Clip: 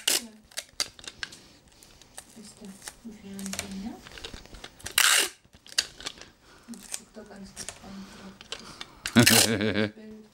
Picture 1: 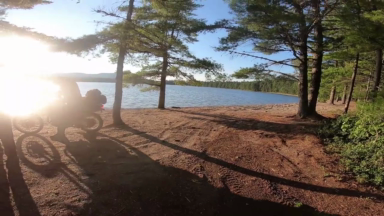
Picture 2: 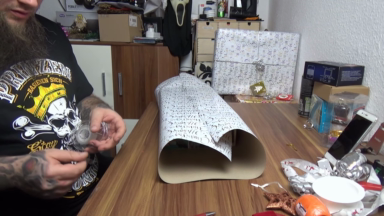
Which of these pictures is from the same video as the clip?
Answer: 2